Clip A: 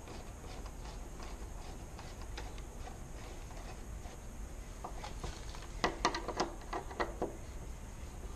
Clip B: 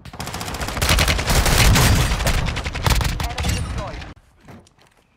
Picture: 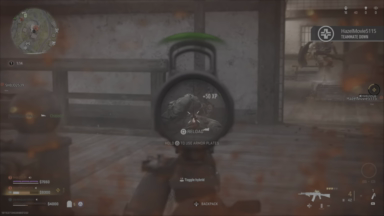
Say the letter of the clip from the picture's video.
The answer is B